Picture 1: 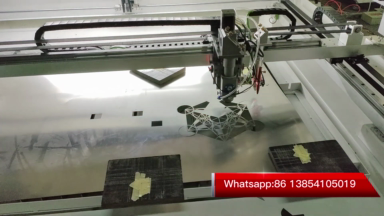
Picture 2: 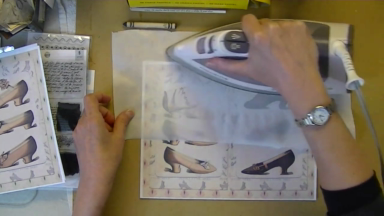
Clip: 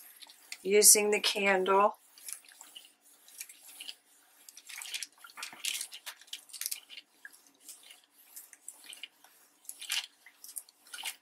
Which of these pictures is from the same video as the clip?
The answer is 2